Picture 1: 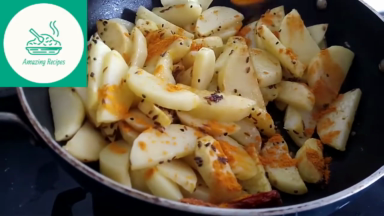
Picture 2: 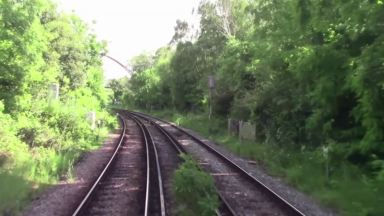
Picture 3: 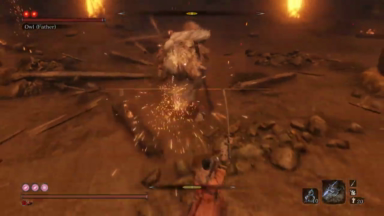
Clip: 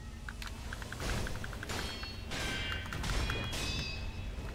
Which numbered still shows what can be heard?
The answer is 3